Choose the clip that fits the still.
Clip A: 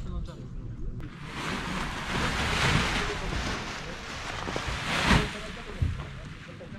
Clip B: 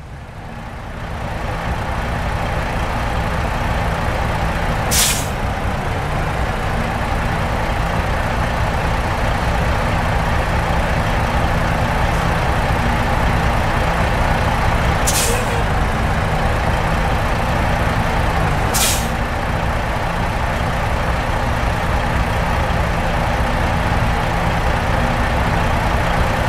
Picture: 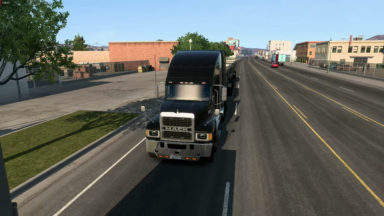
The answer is B